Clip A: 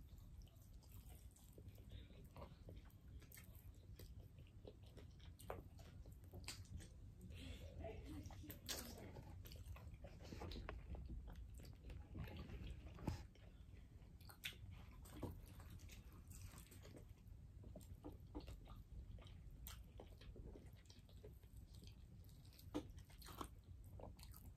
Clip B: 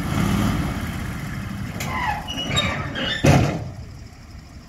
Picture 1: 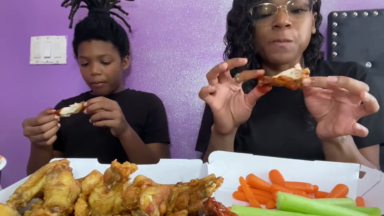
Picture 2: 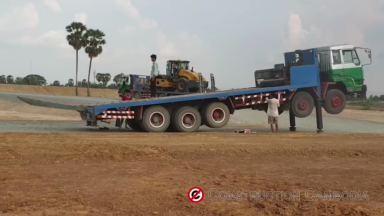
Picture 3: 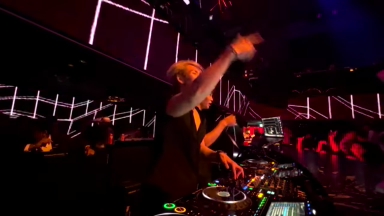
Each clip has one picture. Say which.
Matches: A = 1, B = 2